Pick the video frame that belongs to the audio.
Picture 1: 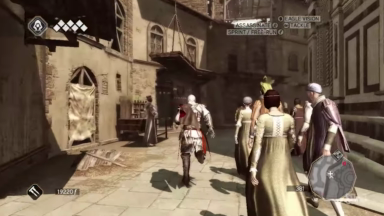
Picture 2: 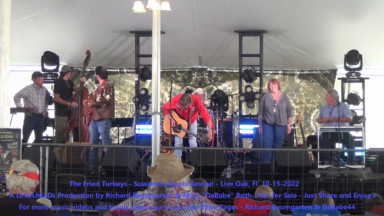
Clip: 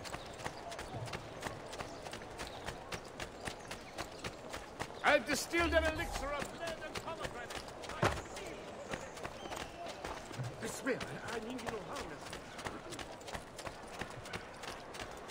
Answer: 1